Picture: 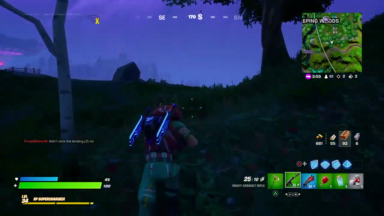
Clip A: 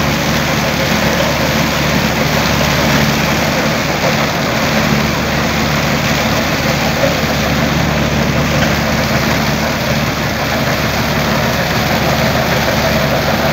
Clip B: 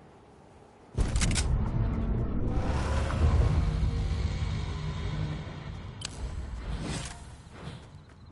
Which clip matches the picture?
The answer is B